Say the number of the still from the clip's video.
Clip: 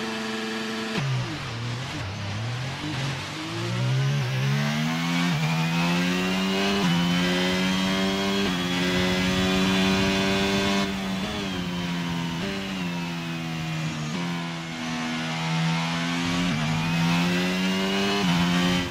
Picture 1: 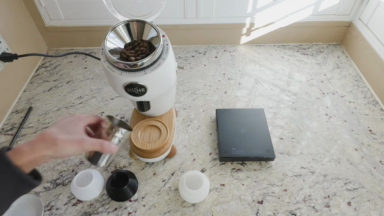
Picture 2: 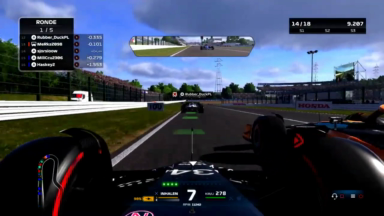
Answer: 2